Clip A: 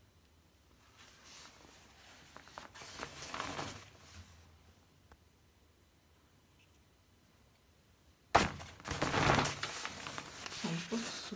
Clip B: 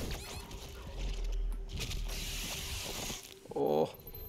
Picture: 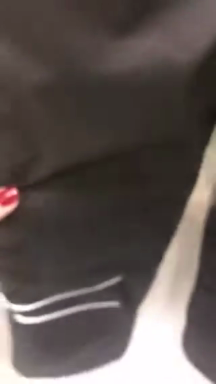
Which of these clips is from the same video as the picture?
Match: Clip A